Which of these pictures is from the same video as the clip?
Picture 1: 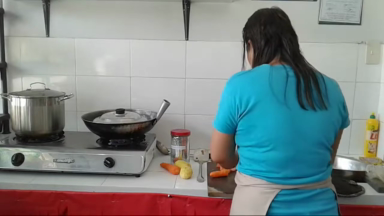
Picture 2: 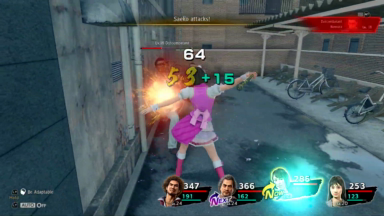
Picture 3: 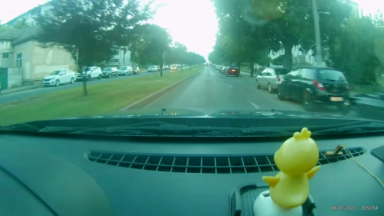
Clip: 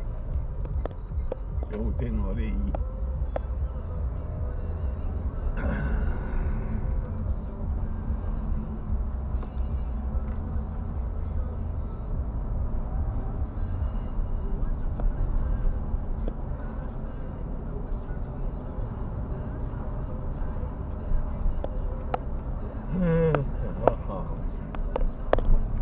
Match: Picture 3